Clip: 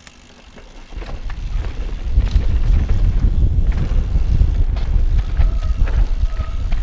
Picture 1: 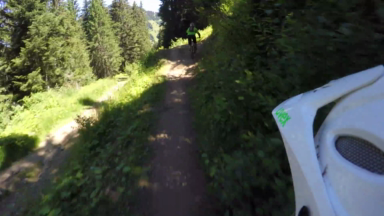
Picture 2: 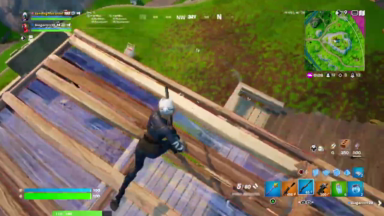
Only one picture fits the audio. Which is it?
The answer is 1